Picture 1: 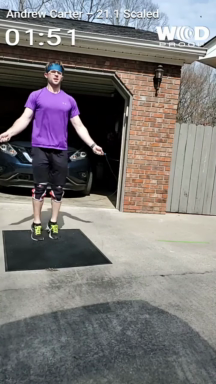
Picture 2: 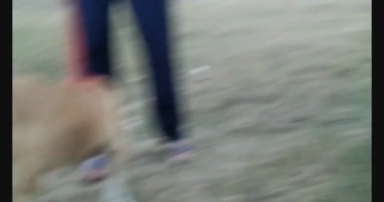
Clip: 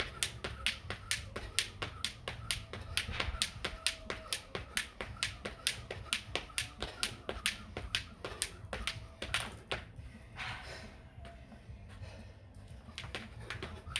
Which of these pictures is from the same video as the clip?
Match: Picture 1